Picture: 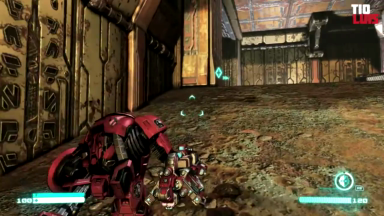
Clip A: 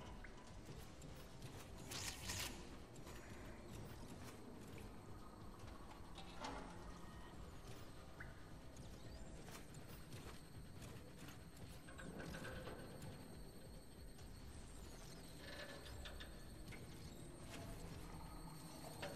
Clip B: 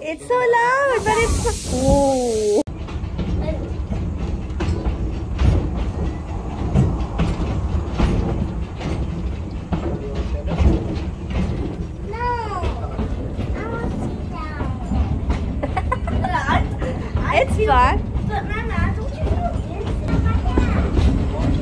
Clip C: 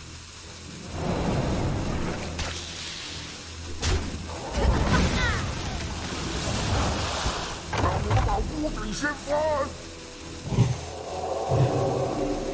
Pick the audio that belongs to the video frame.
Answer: A